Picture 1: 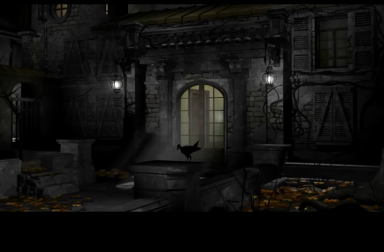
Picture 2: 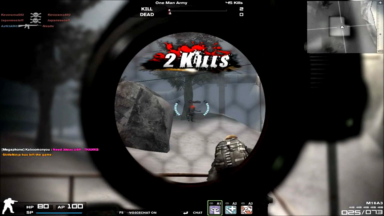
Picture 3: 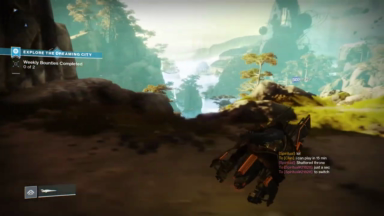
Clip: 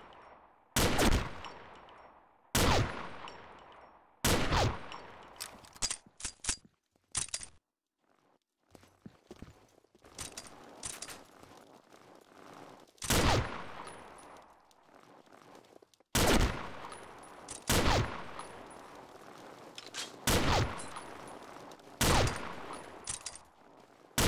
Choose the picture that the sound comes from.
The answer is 2